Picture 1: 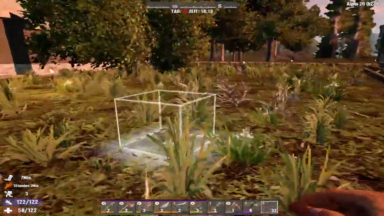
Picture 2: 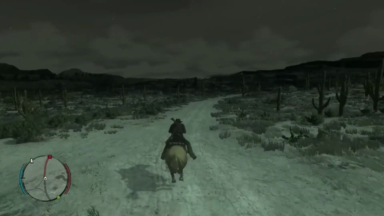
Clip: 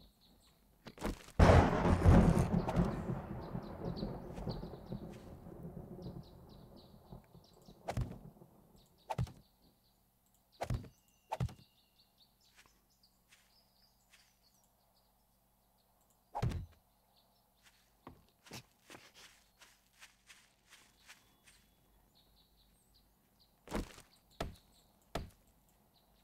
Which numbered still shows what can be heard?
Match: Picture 1